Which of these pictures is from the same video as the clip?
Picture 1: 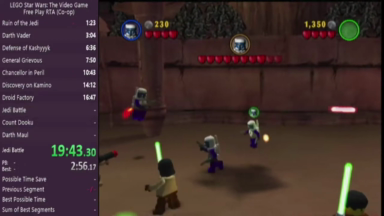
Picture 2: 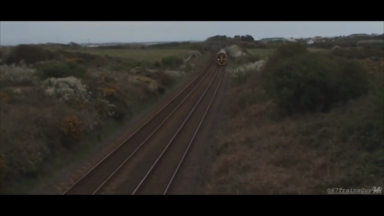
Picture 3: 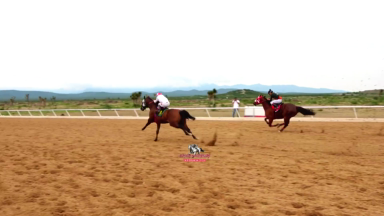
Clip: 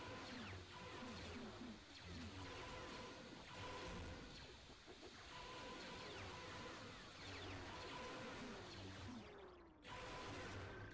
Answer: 1